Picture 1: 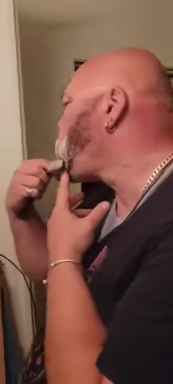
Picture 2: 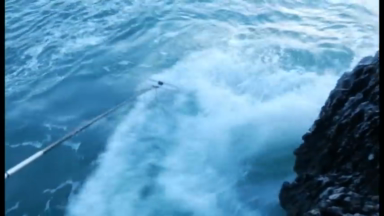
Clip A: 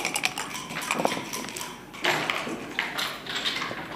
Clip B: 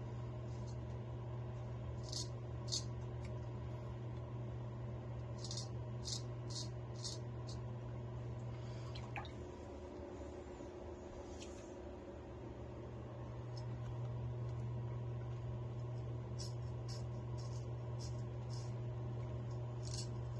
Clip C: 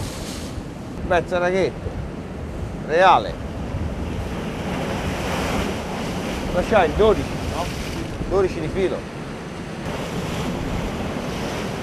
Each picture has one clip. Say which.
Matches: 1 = B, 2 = C